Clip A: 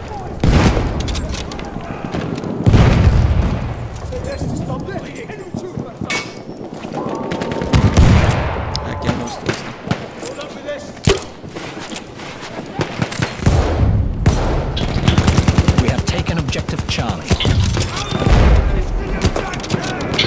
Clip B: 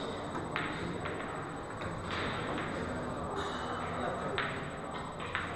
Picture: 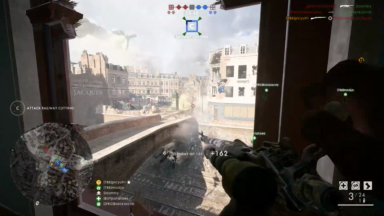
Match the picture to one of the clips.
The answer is A